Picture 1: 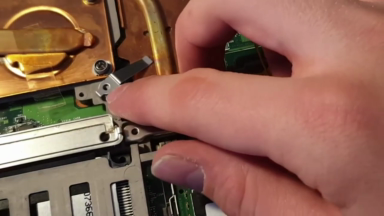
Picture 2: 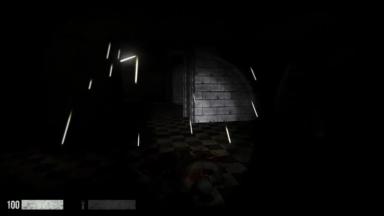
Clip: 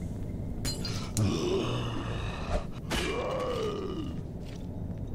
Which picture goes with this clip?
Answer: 2